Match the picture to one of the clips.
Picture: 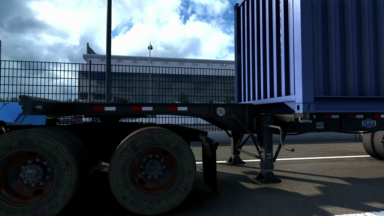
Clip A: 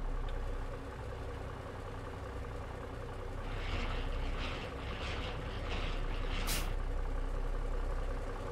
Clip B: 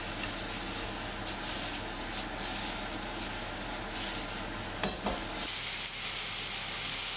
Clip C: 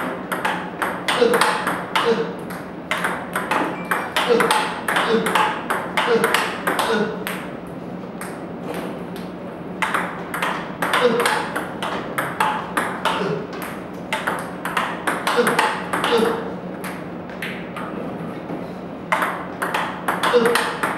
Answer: A